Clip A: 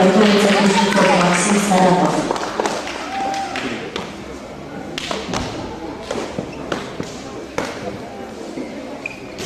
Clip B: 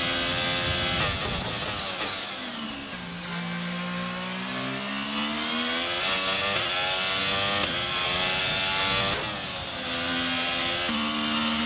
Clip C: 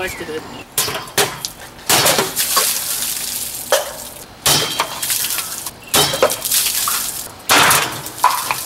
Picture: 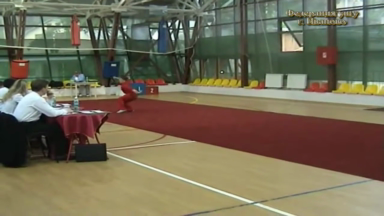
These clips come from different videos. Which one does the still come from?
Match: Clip A